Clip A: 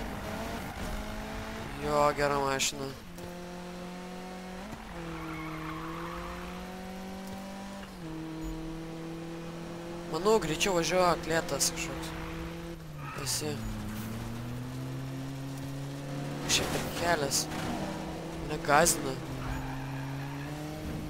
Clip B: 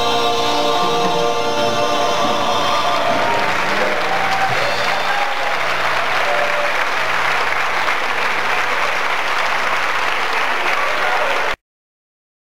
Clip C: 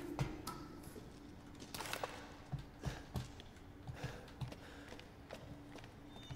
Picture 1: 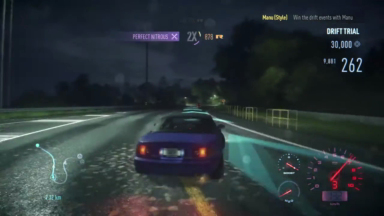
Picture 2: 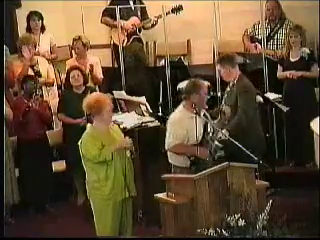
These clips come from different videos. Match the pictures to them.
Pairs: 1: A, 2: B